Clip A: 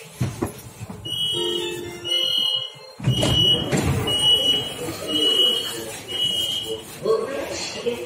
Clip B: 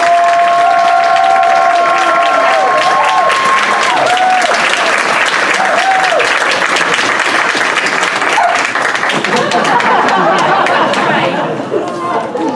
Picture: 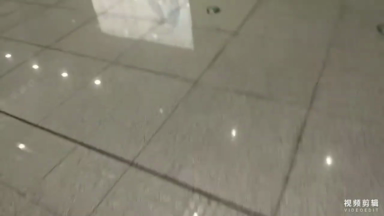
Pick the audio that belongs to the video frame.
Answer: A